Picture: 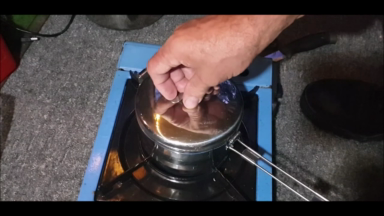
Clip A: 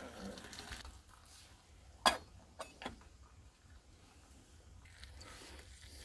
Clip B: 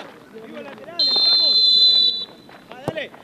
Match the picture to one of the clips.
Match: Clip A